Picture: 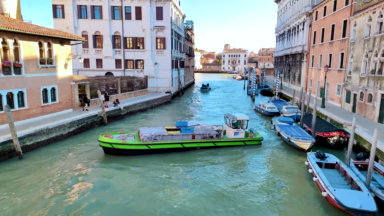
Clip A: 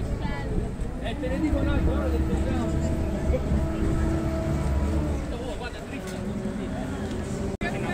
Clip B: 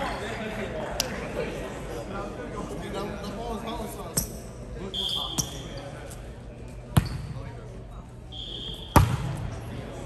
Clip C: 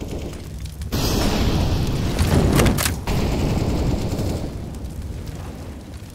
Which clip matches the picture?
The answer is A